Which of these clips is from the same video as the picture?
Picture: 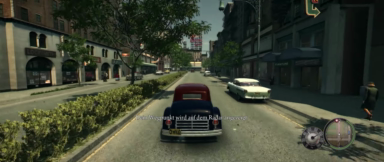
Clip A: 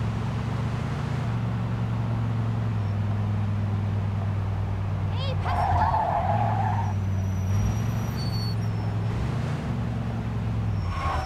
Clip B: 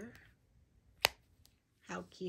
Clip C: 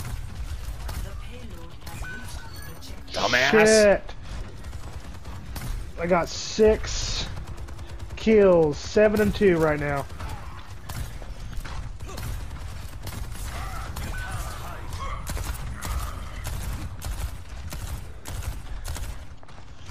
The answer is A